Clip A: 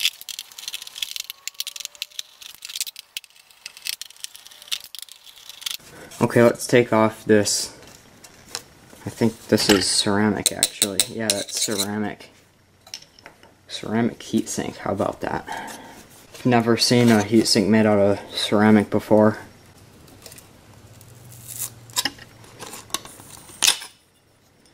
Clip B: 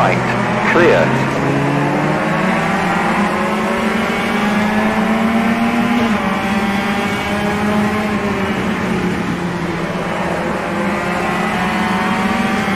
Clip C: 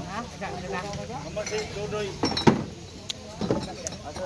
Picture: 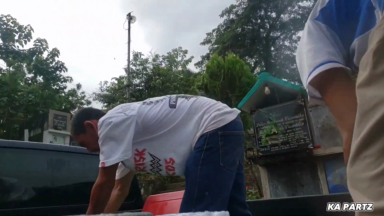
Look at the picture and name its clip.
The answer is C